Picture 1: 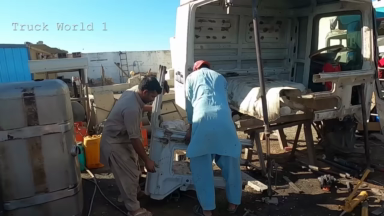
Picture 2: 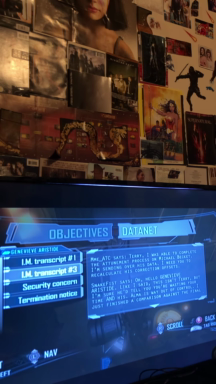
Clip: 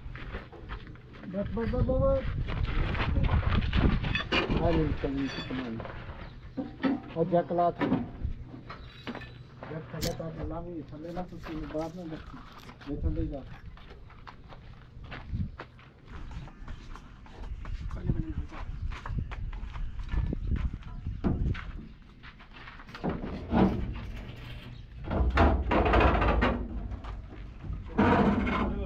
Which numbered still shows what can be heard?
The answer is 1